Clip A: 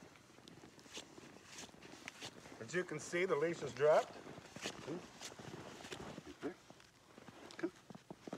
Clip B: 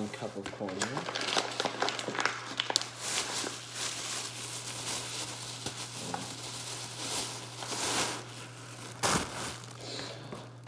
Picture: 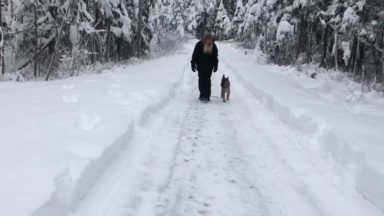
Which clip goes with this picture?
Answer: A